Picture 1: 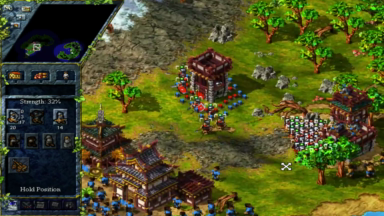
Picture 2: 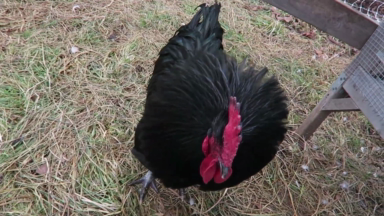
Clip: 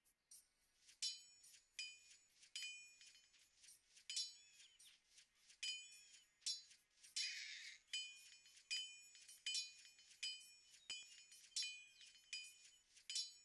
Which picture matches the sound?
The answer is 1